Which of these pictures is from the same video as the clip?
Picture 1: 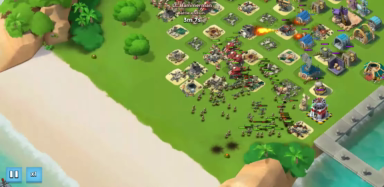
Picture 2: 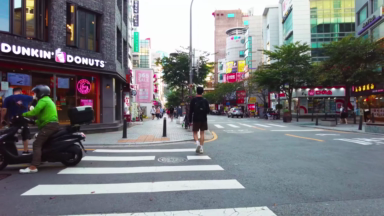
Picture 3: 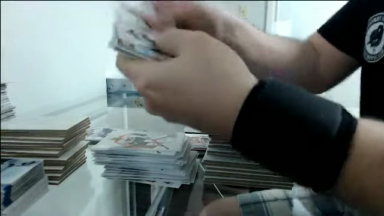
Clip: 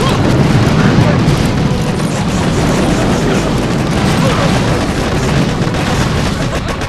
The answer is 1